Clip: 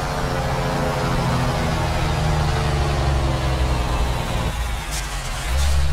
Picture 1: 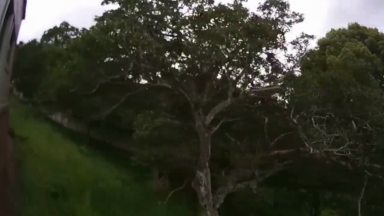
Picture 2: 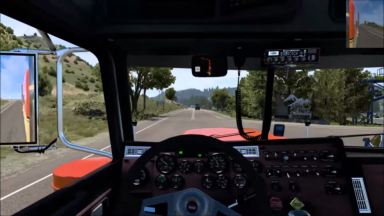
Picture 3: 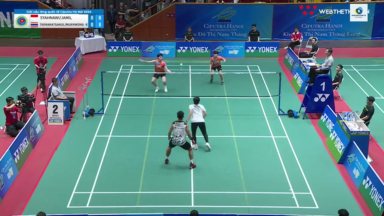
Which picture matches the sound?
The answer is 2